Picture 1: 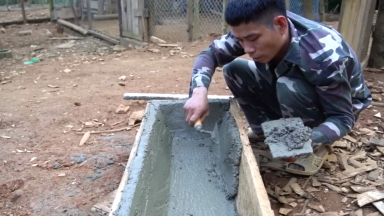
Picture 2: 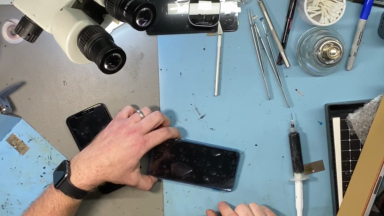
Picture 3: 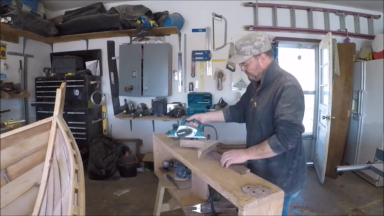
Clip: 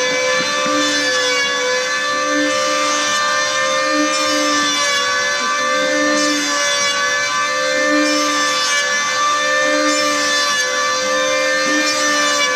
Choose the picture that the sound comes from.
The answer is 3